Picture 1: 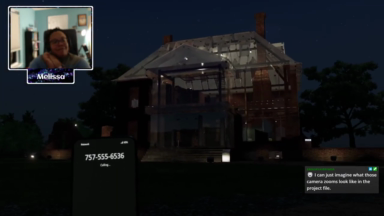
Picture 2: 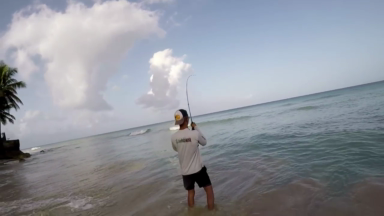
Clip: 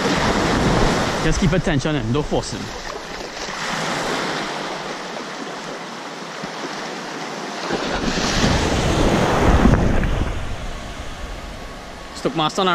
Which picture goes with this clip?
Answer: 2